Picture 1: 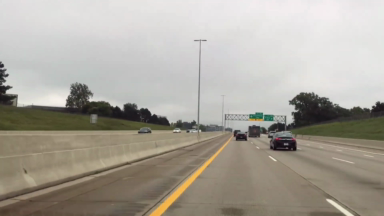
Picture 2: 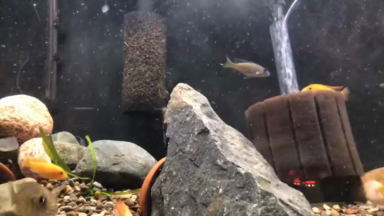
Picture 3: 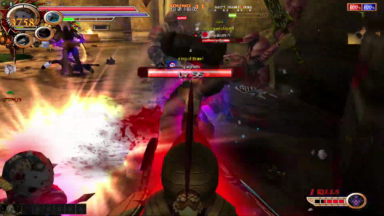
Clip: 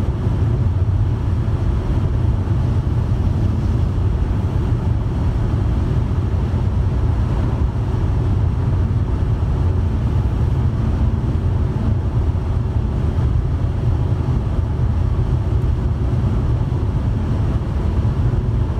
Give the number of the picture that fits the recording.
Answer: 1